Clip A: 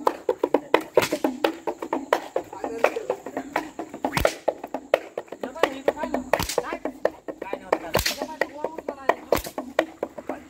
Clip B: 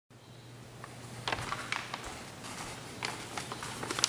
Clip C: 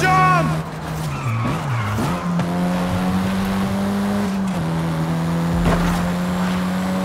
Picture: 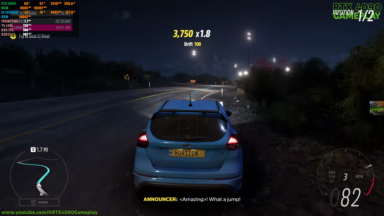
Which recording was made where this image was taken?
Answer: C